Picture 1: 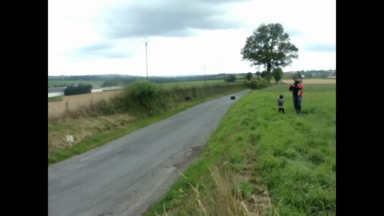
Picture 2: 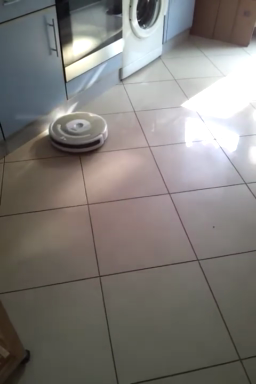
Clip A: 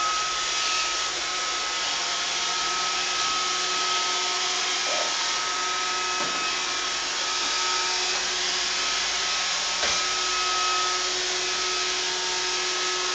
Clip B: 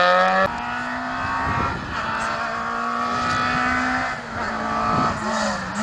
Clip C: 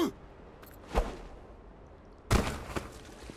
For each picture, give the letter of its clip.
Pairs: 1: B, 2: A